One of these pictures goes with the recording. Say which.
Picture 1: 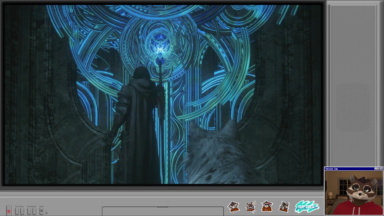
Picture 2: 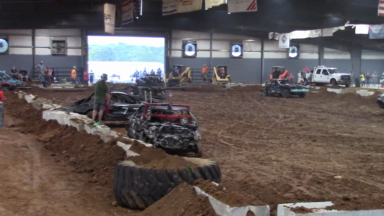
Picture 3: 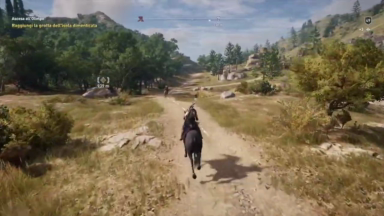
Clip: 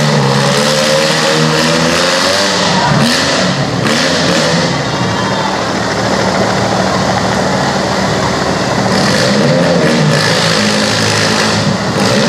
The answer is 2